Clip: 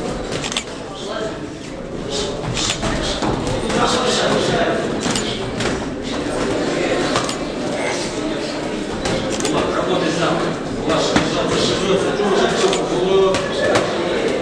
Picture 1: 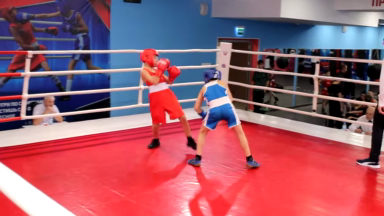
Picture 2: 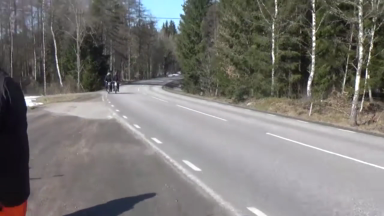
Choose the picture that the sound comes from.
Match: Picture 1